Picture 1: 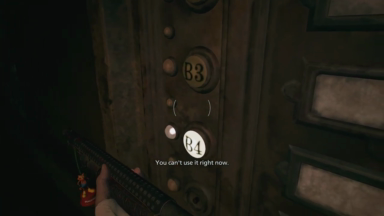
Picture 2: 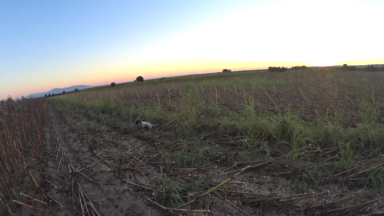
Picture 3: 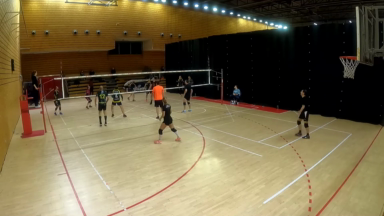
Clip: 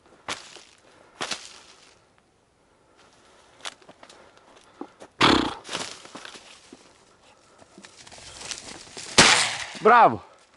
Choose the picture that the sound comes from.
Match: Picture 2